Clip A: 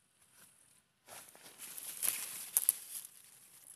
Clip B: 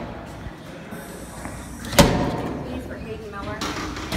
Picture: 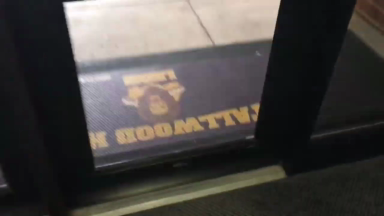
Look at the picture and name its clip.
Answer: B